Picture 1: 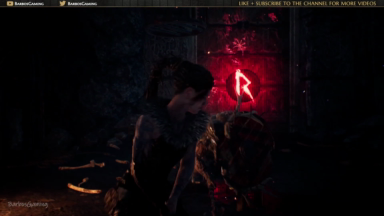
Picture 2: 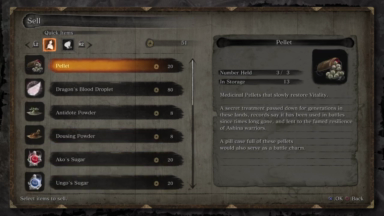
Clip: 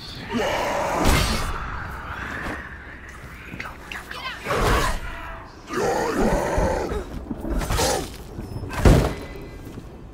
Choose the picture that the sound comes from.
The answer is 1